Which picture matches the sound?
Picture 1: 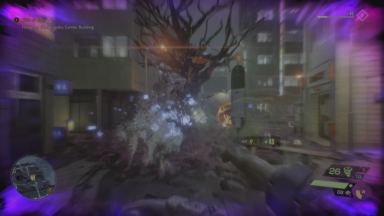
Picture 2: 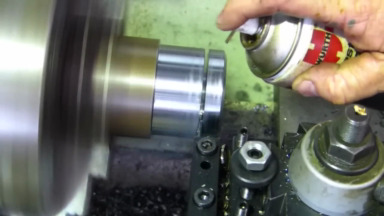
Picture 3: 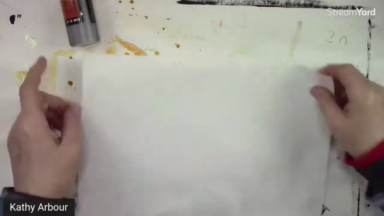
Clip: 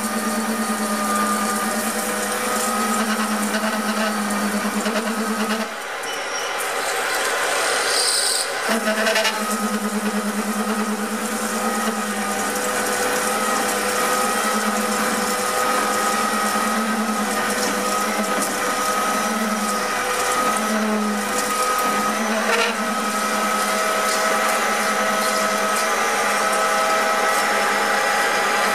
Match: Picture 2